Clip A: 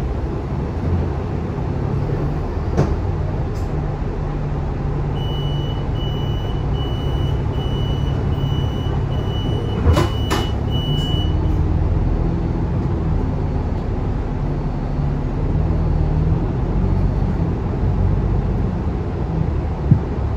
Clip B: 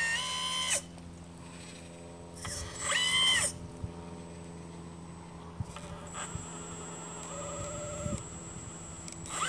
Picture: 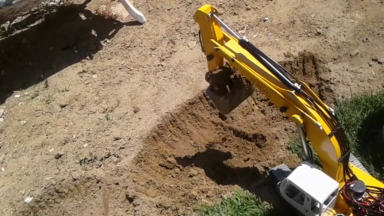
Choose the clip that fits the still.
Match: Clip B